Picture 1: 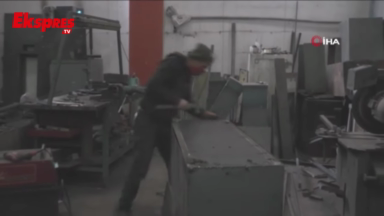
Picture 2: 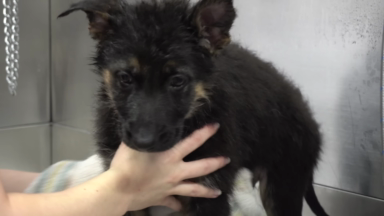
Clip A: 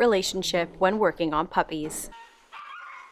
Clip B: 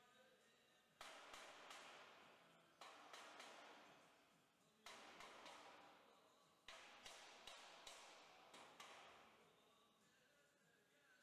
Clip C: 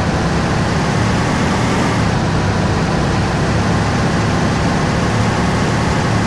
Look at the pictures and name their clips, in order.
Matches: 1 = B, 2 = A